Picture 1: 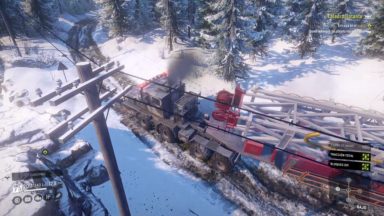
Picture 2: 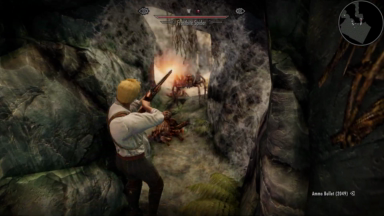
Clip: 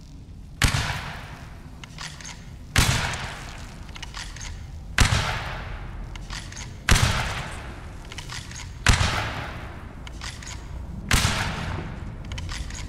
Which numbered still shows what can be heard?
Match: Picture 2